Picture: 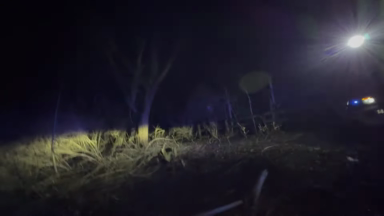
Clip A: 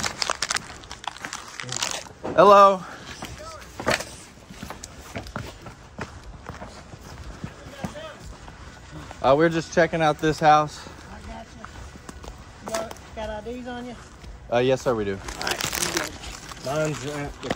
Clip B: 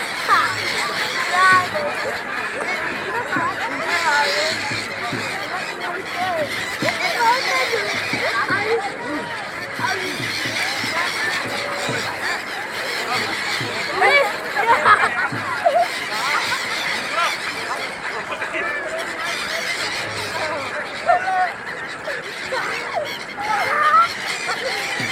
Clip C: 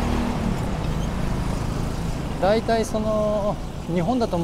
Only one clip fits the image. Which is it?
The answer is A